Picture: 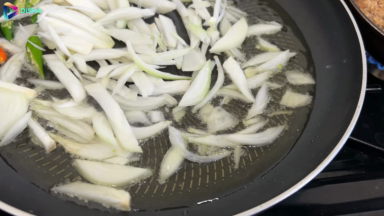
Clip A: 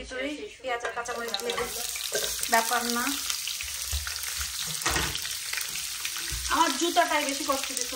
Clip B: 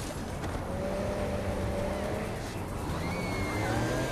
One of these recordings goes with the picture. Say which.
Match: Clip A